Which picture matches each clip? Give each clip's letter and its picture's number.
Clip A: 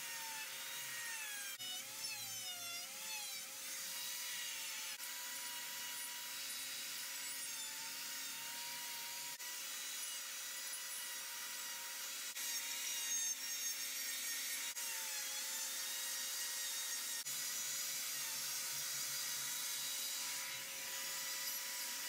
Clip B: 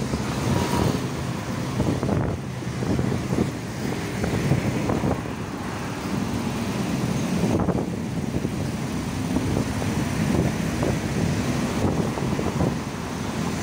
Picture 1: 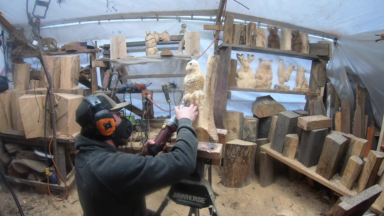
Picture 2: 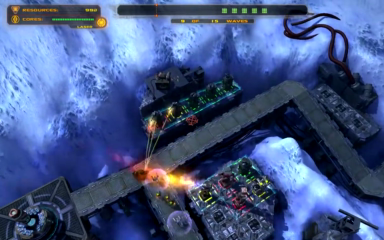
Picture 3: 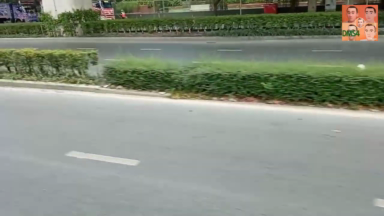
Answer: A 1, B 3